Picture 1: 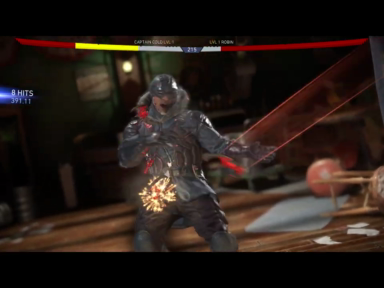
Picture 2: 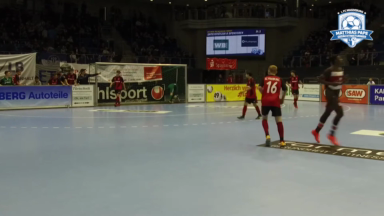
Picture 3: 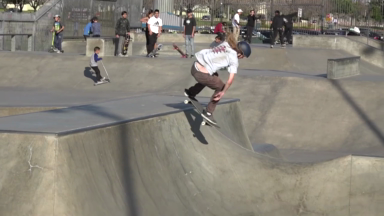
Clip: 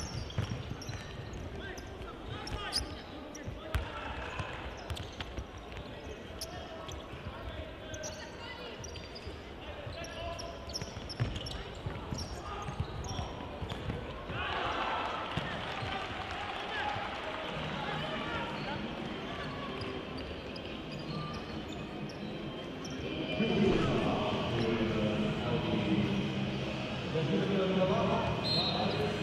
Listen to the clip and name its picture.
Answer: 2